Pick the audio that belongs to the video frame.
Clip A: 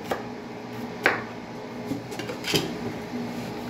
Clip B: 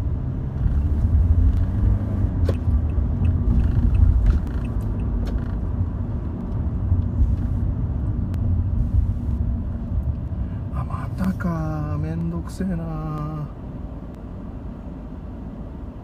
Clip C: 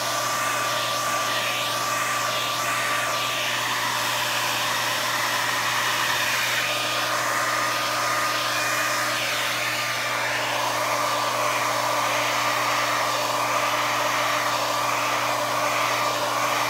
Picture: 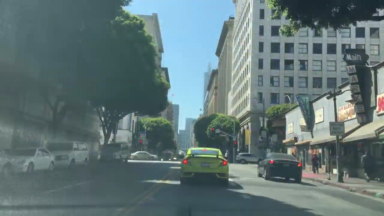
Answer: B